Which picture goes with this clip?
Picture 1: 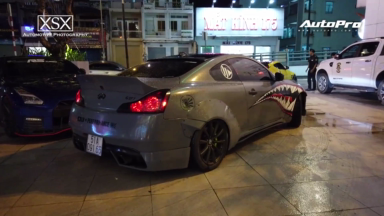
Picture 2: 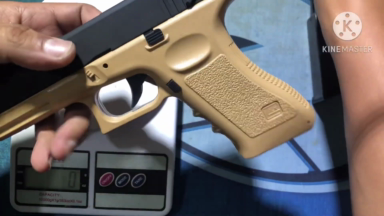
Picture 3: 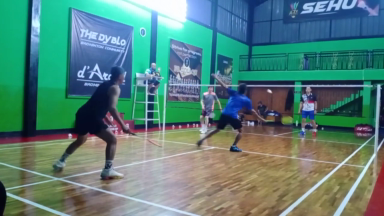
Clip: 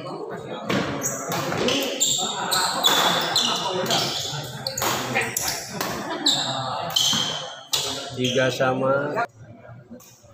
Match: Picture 3